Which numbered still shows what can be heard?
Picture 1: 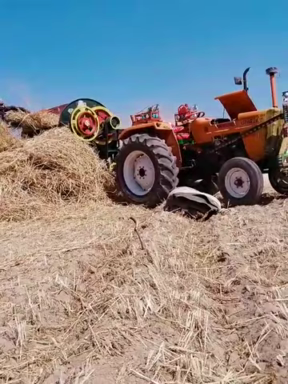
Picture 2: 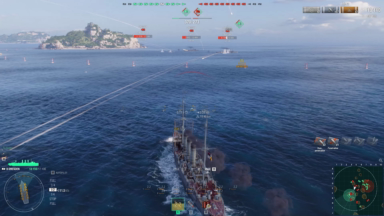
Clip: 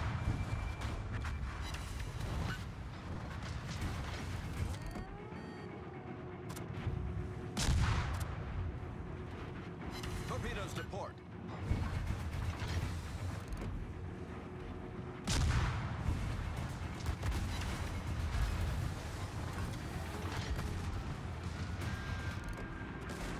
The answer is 2